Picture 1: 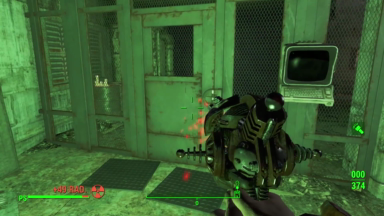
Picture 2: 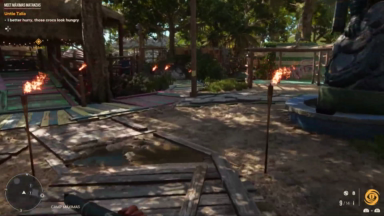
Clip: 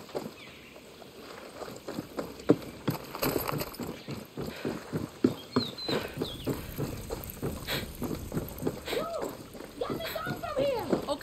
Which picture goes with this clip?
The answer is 2